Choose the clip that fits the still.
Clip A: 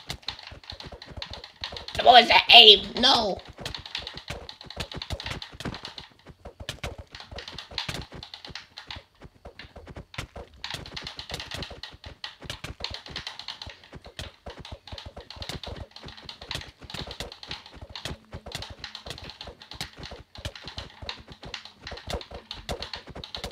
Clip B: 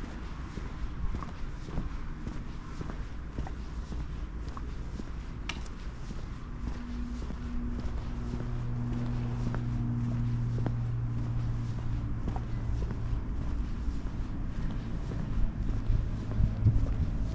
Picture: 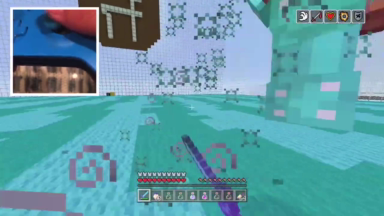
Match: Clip A